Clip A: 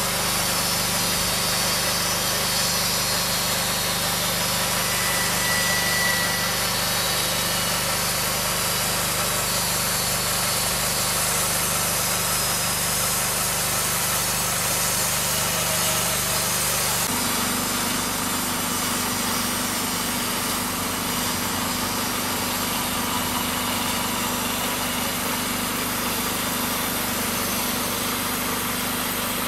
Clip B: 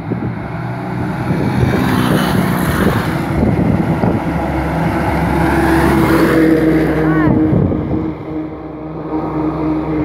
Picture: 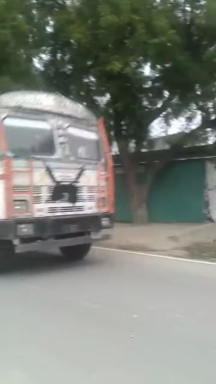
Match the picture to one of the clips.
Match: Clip B